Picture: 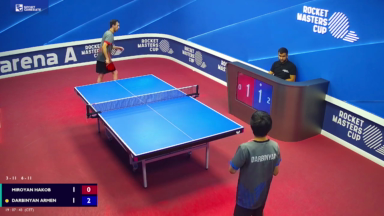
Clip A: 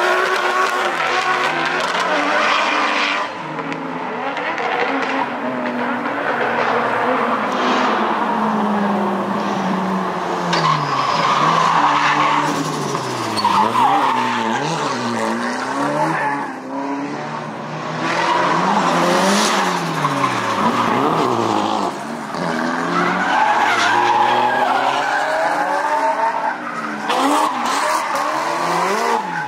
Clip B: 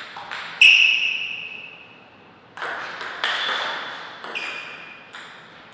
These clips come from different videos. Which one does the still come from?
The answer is B